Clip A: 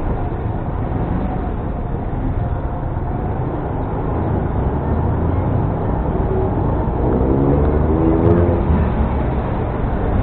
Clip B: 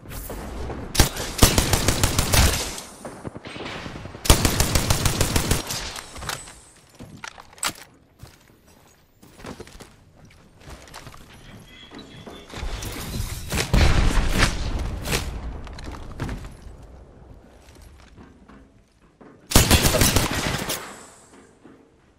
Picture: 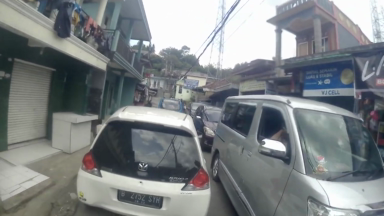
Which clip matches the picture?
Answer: A